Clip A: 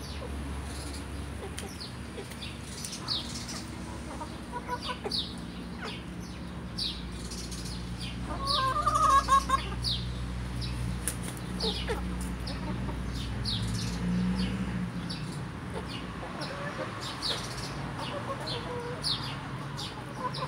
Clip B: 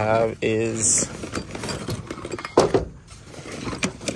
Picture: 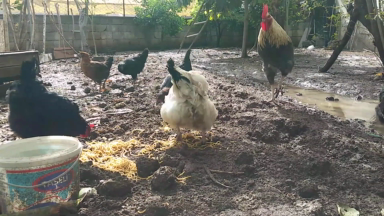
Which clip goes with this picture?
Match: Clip A